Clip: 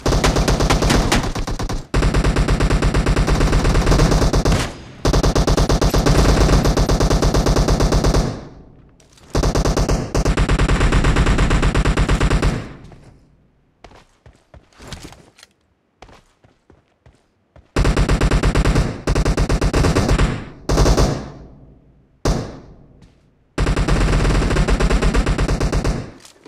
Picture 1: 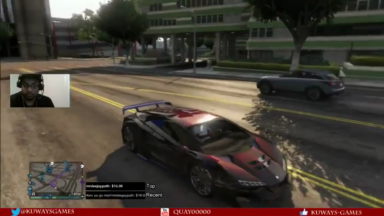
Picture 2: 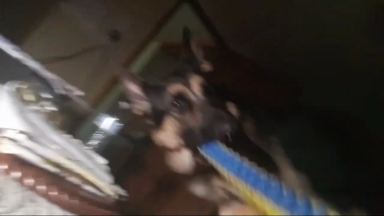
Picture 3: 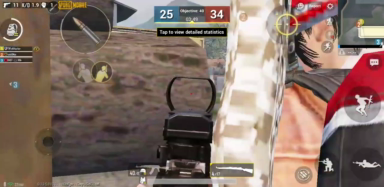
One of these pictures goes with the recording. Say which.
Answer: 3